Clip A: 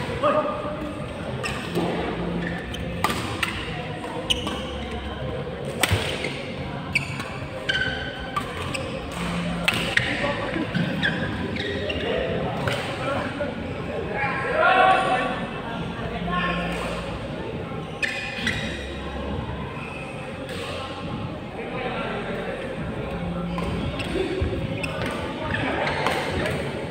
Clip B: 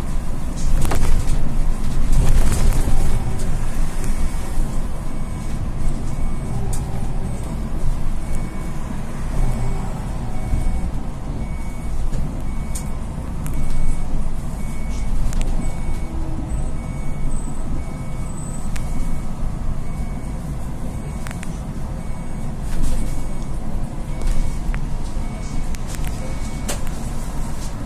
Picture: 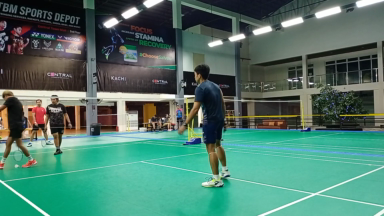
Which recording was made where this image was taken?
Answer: A